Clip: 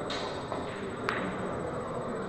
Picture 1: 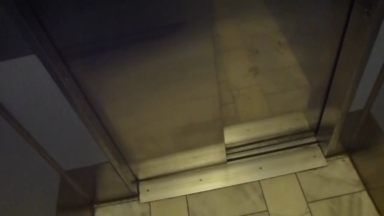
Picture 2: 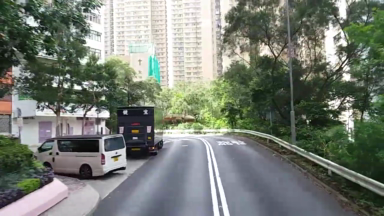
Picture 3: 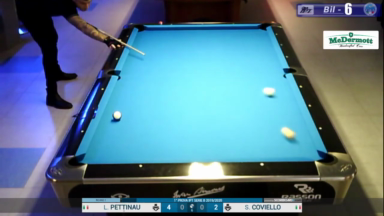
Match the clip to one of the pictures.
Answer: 3